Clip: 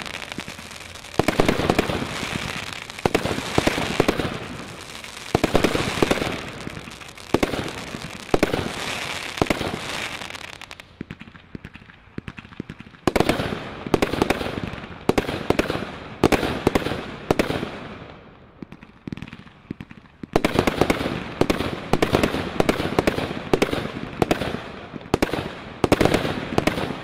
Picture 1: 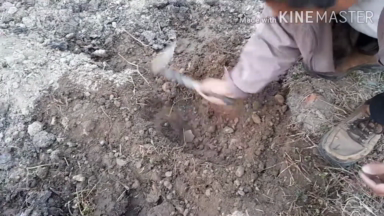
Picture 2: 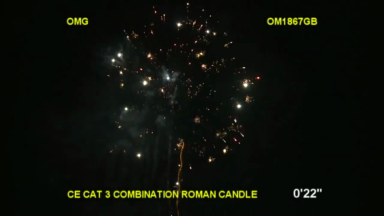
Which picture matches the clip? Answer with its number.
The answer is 2